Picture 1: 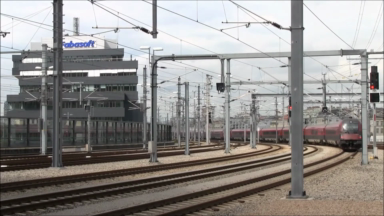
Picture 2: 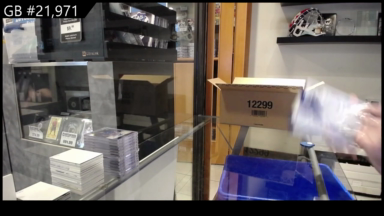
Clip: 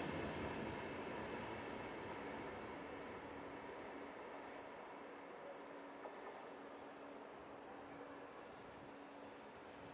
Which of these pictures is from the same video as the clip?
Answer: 1